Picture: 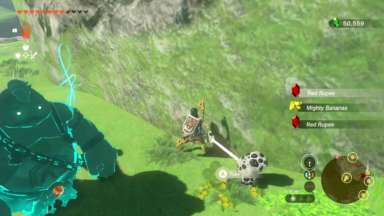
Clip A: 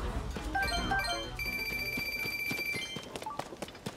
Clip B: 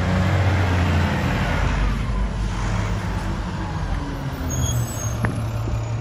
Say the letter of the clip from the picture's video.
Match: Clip A